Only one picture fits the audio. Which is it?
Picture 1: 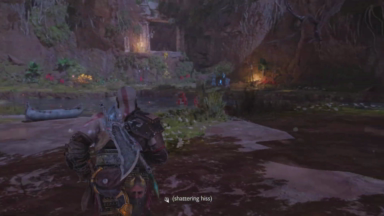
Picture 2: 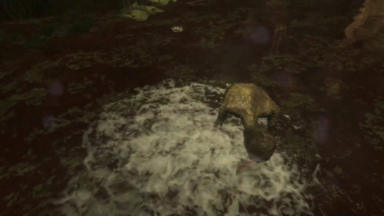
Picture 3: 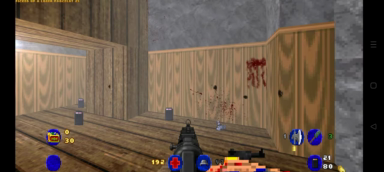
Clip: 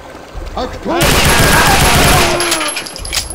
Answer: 3